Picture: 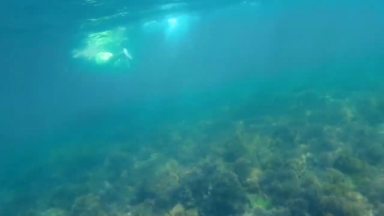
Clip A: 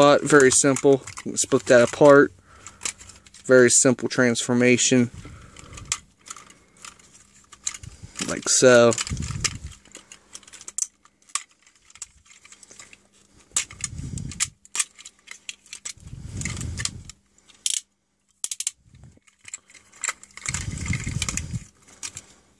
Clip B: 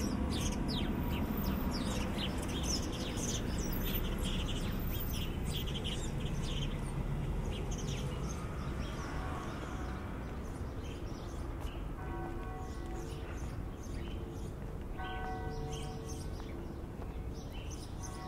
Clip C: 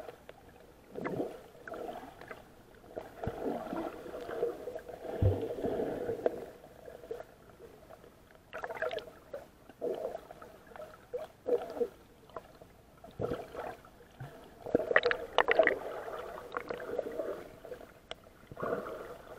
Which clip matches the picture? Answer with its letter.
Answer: C